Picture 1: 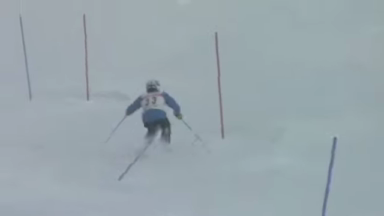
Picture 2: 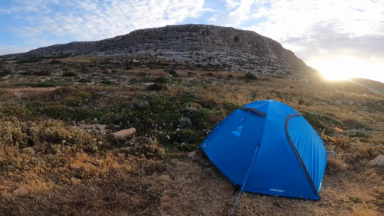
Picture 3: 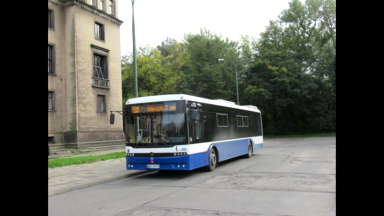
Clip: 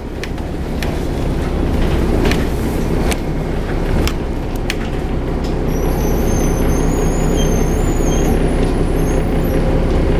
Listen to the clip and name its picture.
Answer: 3